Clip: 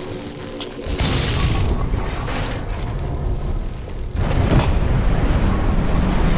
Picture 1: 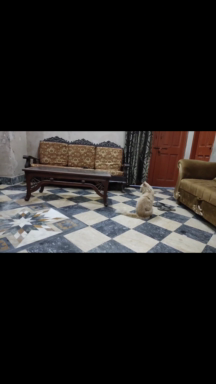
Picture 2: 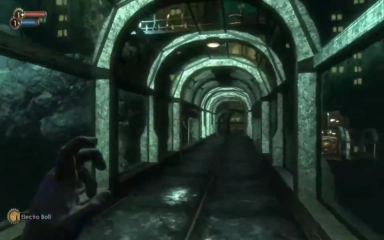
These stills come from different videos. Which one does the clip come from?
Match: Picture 2